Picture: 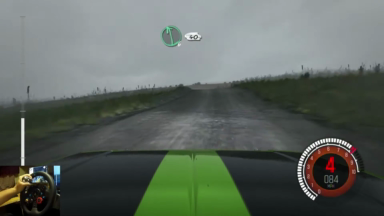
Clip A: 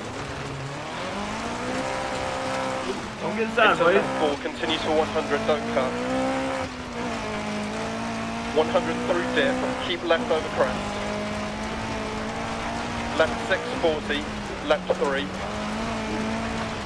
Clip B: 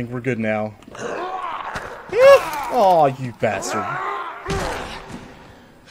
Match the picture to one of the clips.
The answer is A